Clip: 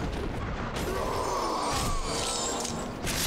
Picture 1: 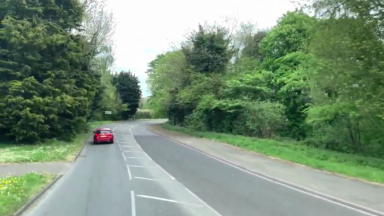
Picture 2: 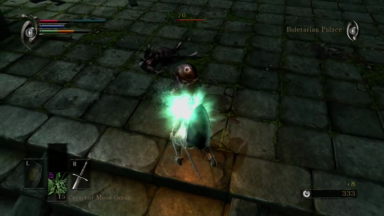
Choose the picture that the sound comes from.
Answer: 2